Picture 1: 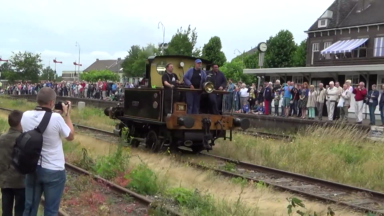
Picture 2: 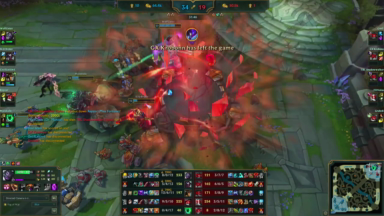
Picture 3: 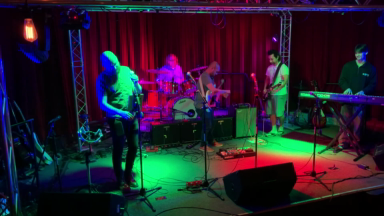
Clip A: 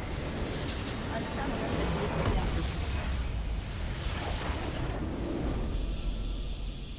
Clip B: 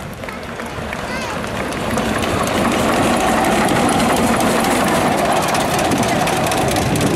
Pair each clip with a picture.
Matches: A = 2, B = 1